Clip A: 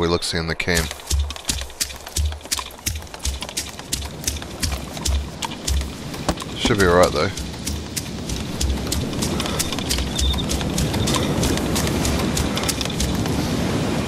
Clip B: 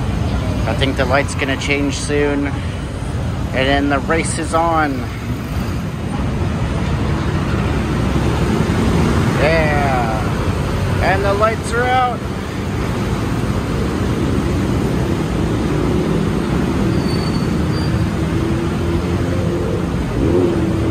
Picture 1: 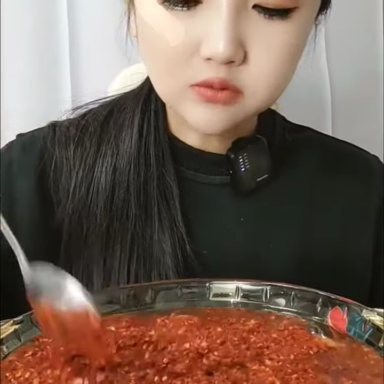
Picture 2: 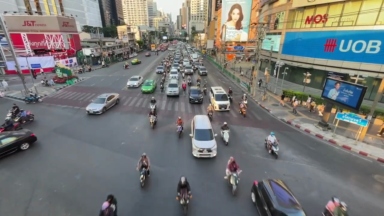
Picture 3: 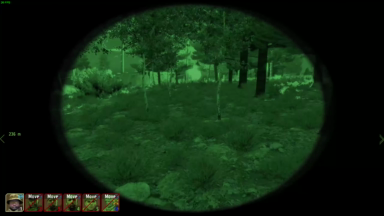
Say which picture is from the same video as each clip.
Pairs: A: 3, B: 2